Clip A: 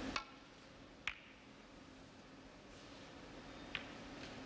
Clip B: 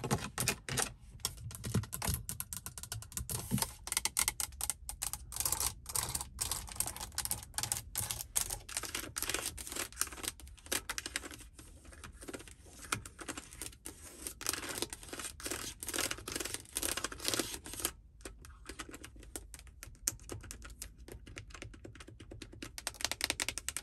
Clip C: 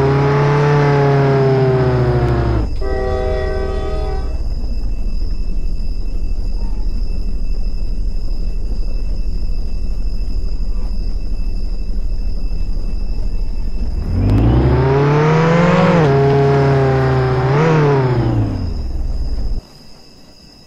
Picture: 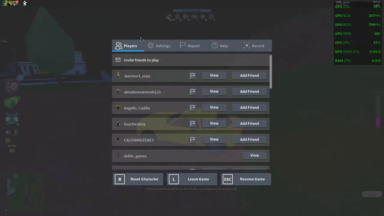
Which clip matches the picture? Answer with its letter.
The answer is C